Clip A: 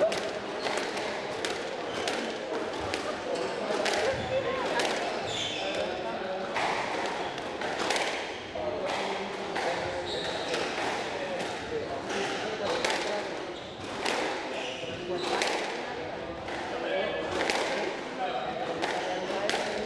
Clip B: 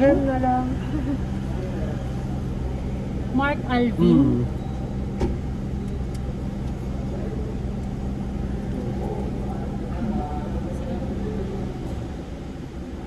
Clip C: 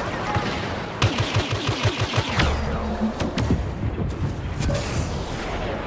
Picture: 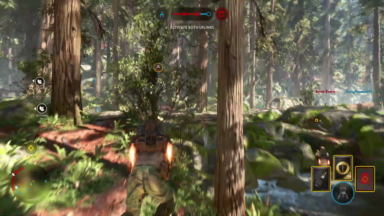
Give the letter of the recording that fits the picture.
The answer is C